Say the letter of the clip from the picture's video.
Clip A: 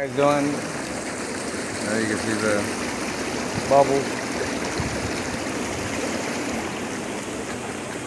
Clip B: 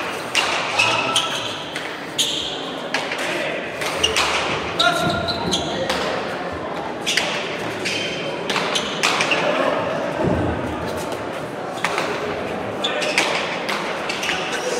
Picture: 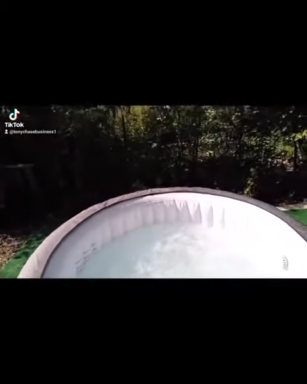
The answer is A